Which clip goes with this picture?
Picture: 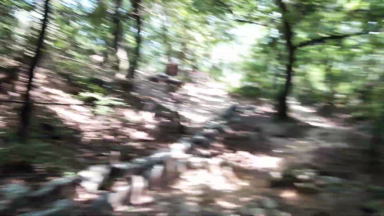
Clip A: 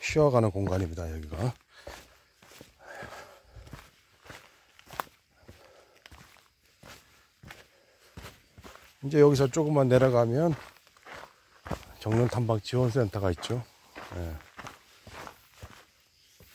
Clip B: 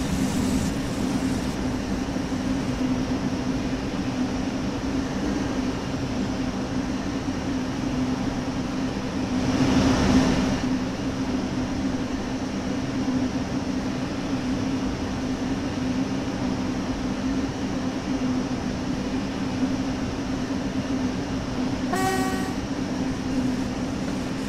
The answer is A